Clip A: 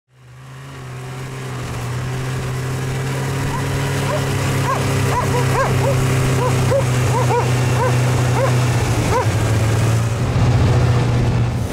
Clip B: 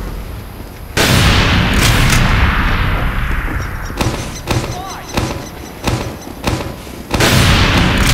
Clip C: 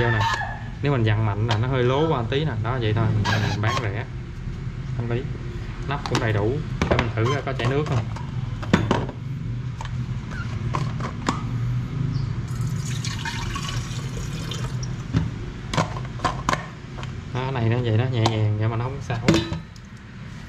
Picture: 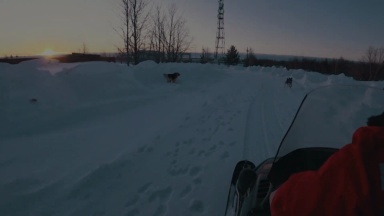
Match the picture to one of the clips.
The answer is A